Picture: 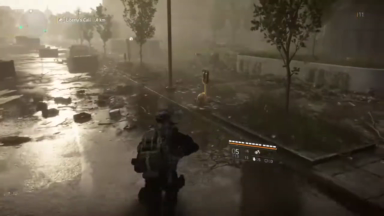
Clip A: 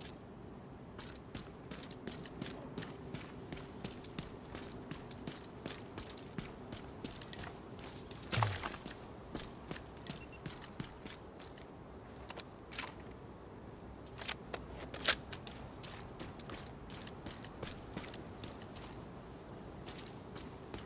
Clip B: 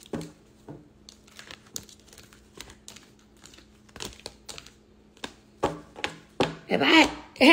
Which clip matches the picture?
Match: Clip A